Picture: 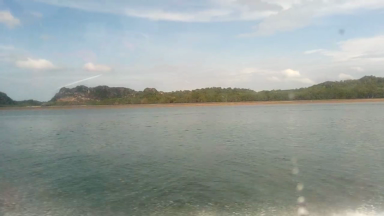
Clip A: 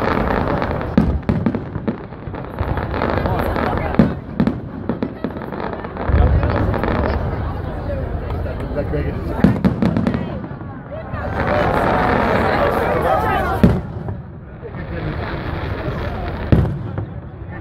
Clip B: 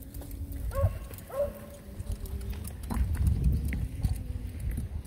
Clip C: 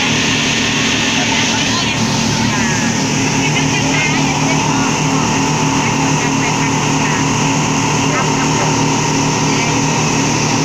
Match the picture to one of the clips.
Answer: C